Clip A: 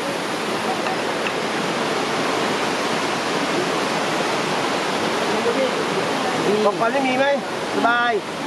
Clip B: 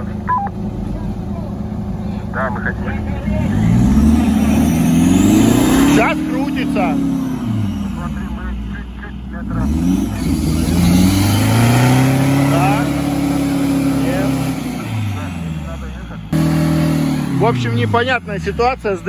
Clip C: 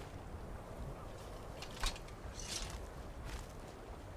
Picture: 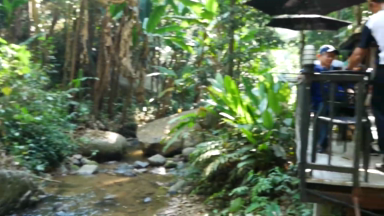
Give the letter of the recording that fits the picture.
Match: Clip A